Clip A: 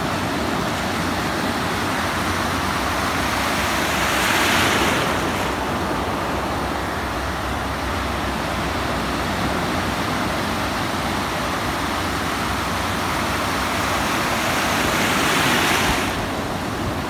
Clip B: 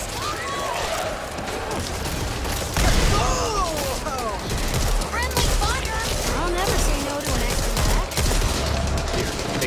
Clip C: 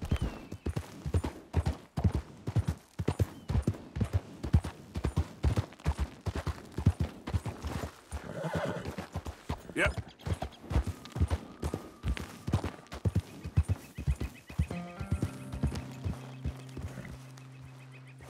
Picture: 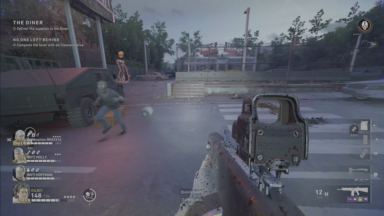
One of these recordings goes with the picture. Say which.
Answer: B